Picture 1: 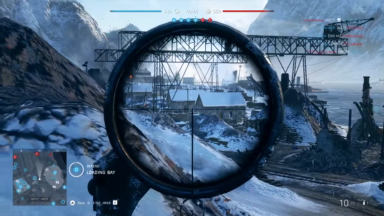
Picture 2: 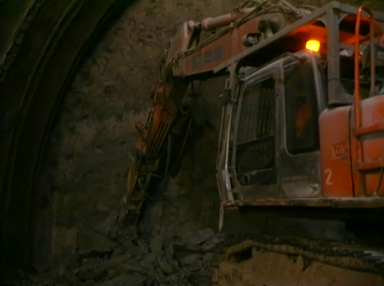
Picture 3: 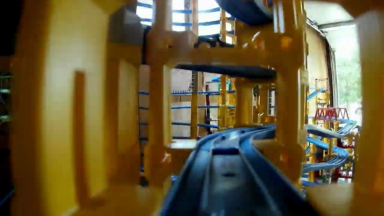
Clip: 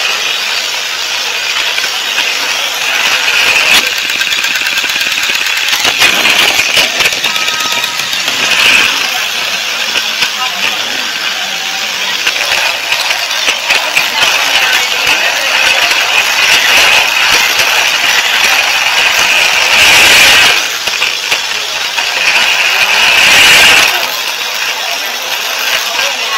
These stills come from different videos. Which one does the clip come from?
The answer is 3